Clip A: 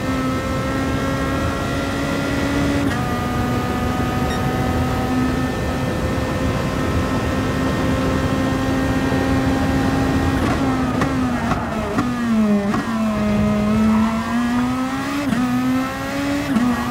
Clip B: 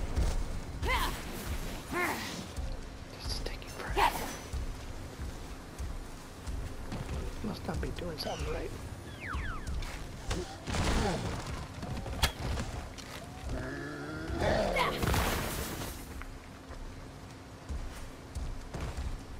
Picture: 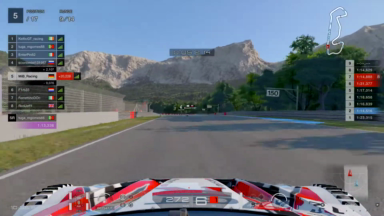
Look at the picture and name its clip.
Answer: A